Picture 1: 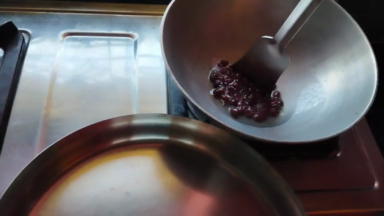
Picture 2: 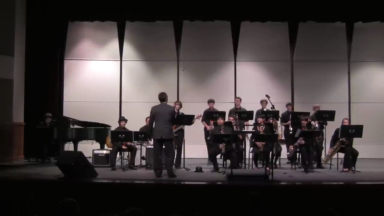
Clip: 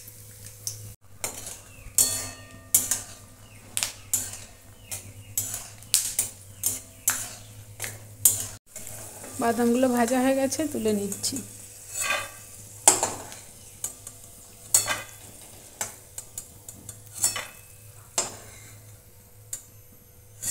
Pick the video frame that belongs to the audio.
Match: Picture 1